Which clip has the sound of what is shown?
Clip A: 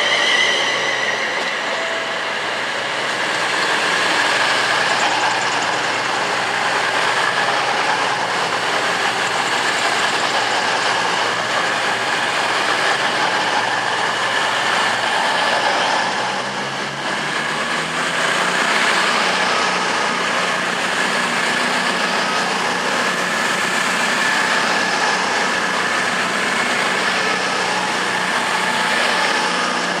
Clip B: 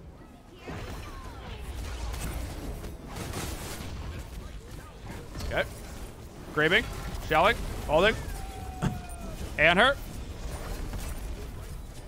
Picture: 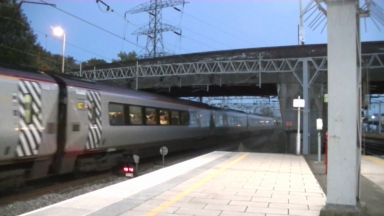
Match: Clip A